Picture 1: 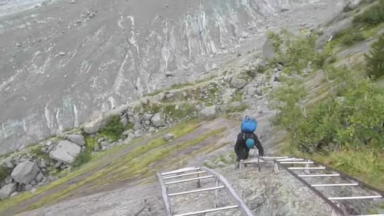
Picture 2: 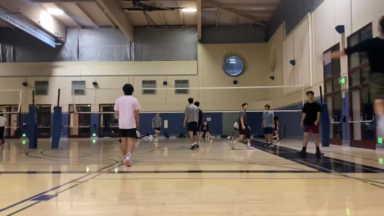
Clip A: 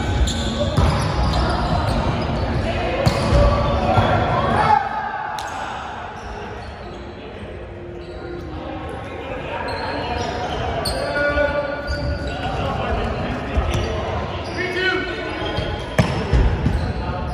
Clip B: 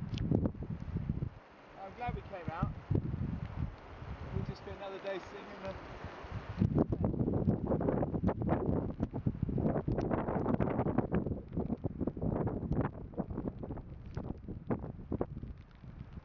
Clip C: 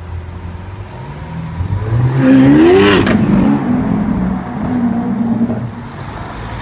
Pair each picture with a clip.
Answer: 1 B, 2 A